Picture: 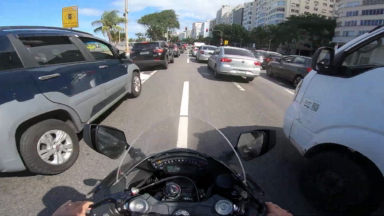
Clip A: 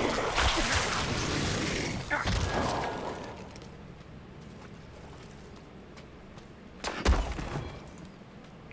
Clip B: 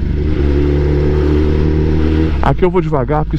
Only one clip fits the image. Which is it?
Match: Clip B